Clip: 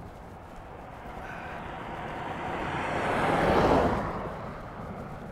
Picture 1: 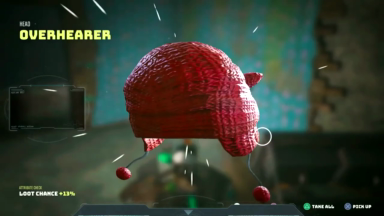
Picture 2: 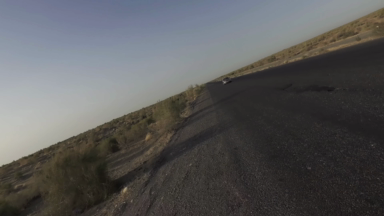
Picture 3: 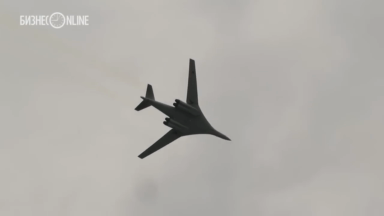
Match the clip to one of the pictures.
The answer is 2